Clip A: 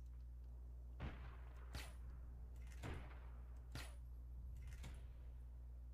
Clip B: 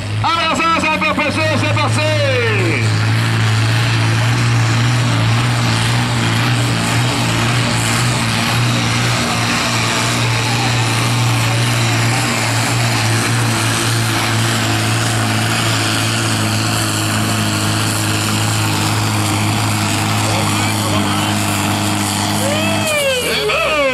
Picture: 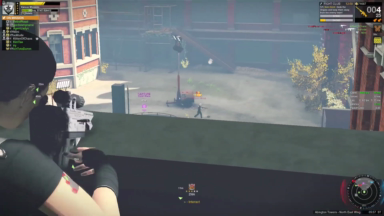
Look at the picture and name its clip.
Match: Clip A